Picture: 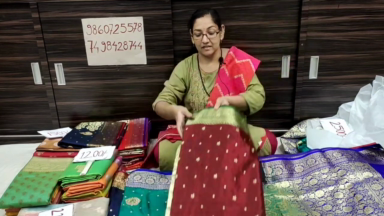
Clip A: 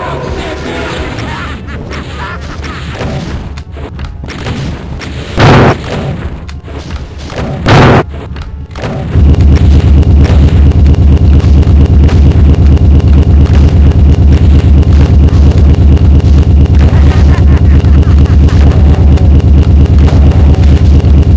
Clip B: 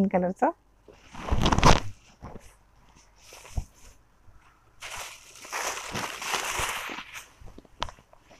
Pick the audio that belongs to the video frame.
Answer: B